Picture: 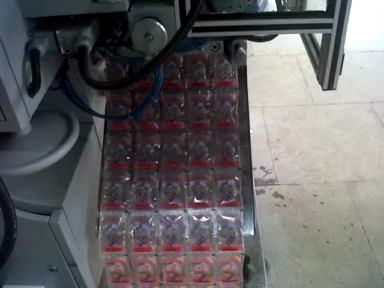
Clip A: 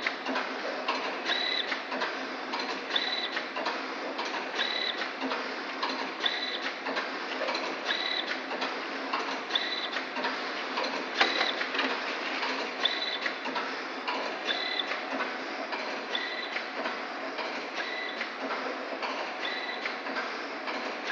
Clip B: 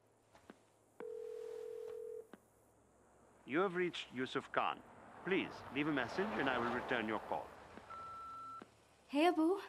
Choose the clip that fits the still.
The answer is A